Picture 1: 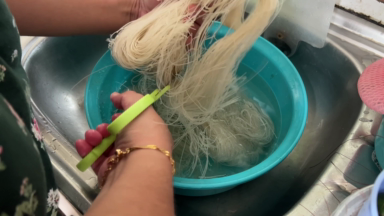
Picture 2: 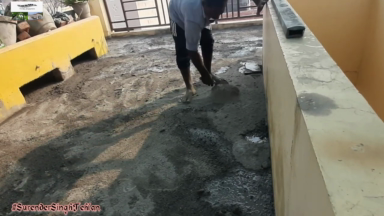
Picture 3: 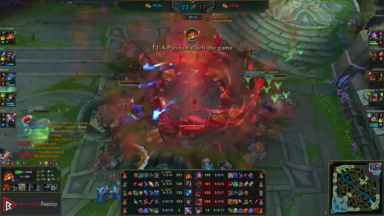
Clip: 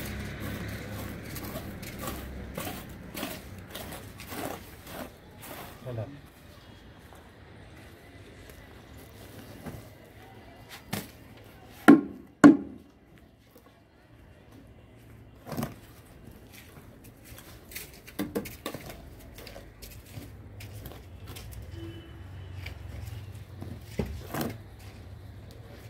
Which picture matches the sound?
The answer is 2